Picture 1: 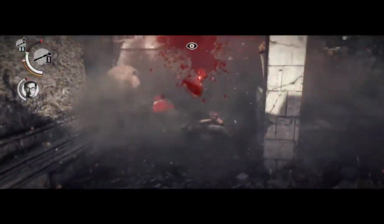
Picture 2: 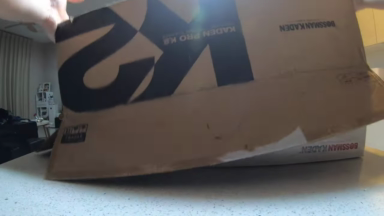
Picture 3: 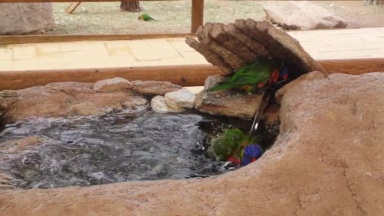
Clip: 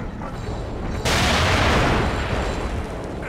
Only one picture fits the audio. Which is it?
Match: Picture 1